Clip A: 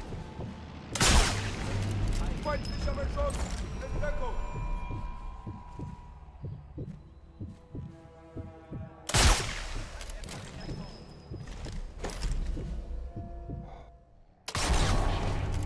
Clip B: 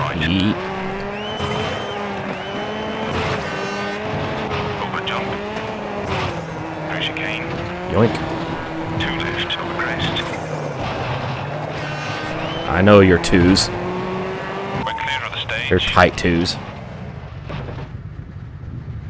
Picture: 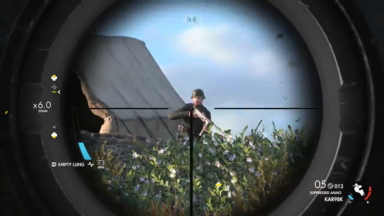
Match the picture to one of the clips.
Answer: A